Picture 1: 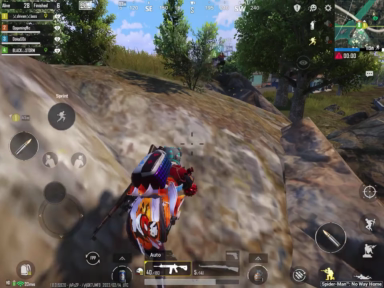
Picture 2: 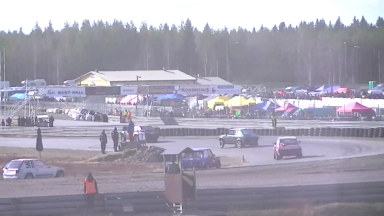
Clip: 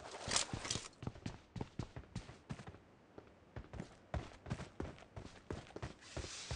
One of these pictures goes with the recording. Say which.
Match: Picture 1